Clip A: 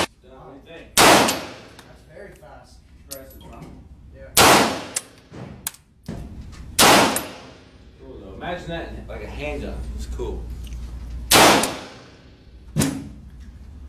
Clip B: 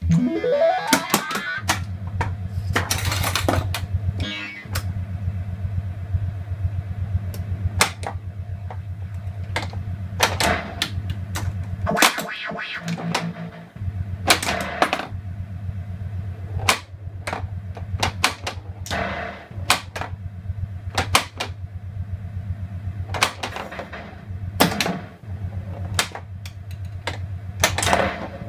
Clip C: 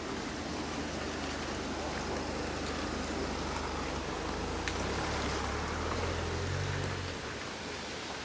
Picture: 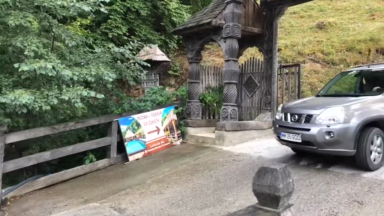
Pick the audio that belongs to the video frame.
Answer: C